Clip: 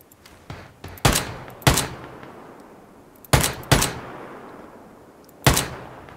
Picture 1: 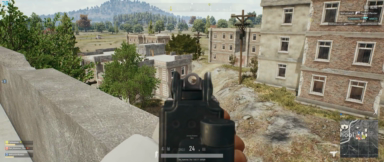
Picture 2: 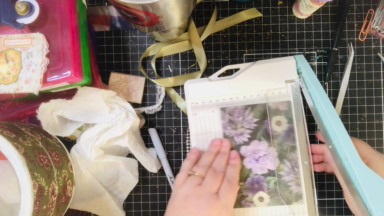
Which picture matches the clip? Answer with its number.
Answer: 1